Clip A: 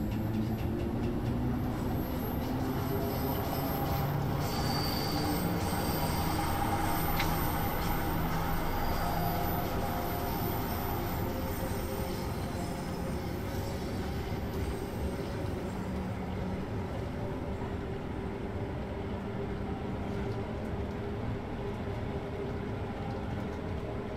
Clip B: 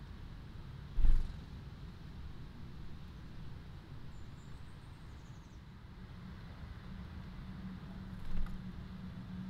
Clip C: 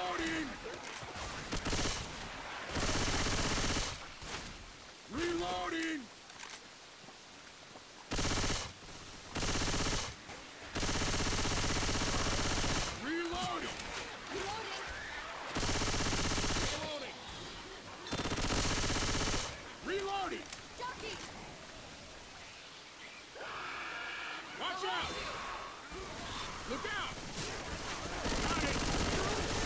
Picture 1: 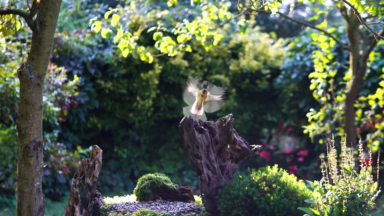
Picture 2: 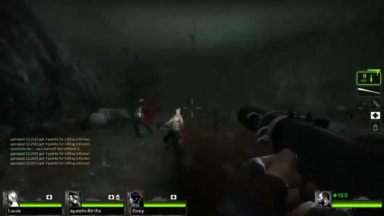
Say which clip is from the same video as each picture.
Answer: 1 B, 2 C